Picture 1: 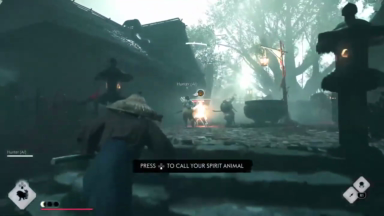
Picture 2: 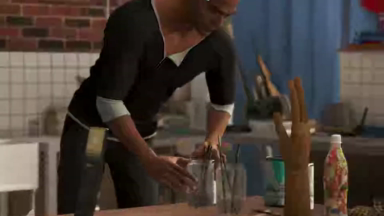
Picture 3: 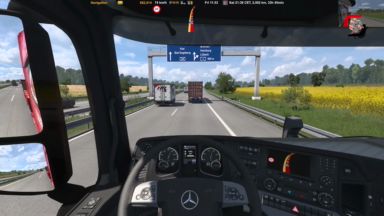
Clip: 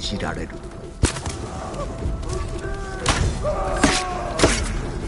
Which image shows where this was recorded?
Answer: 1